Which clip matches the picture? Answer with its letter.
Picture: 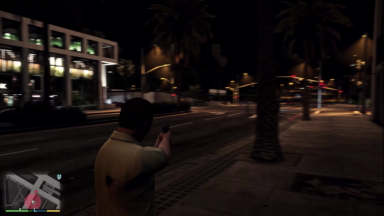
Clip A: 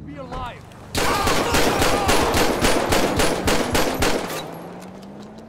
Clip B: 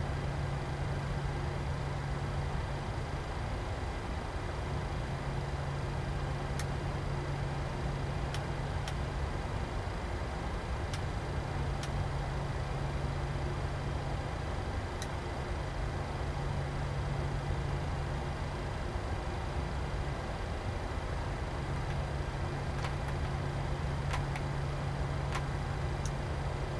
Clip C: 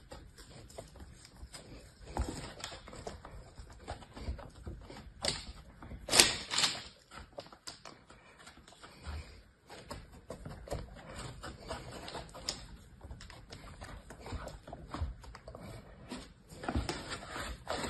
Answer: A